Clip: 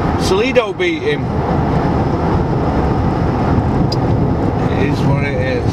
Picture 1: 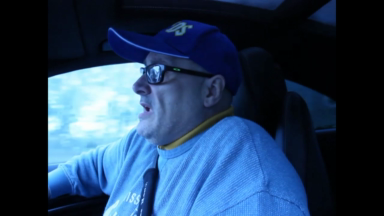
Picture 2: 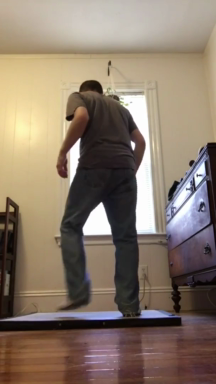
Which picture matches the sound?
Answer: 1